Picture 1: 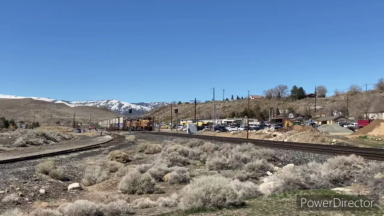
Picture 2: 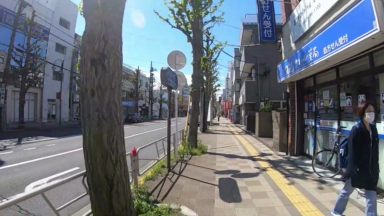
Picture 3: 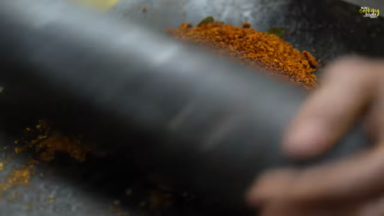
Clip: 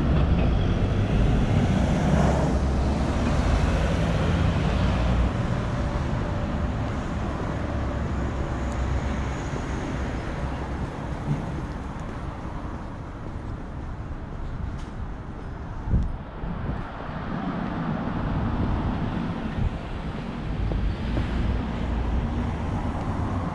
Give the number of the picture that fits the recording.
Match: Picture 2